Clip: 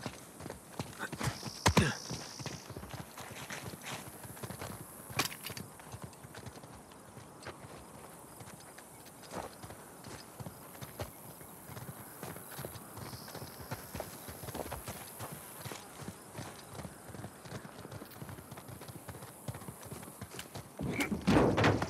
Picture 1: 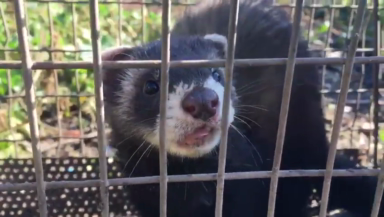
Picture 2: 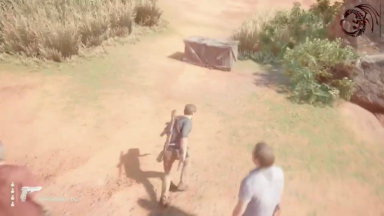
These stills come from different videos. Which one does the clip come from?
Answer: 2